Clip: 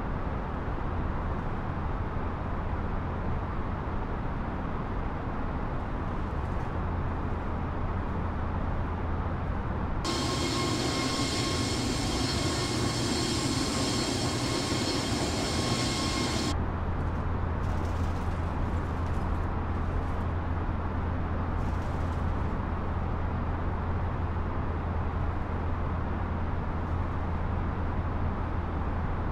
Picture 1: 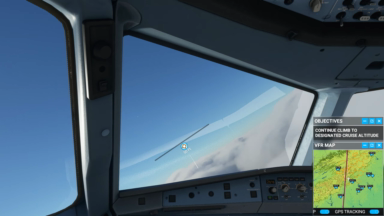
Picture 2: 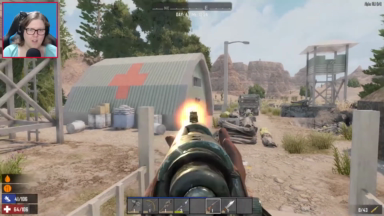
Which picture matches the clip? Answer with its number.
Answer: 1